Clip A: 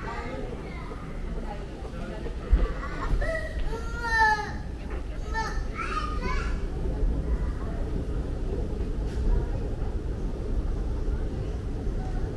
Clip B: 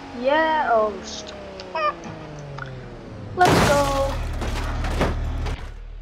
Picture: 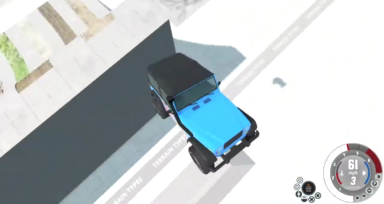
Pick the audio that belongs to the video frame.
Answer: B